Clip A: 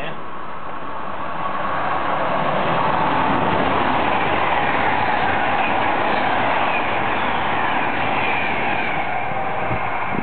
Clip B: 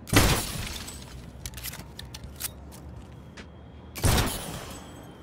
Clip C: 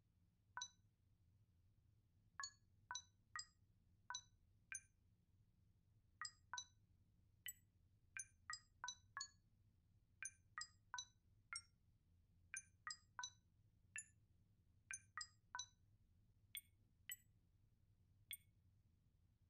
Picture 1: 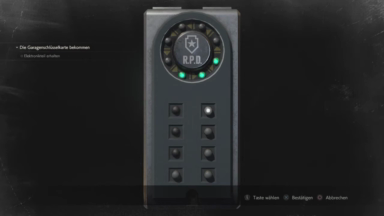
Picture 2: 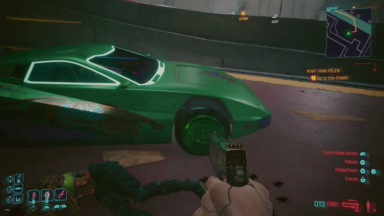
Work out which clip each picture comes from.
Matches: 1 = C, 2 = B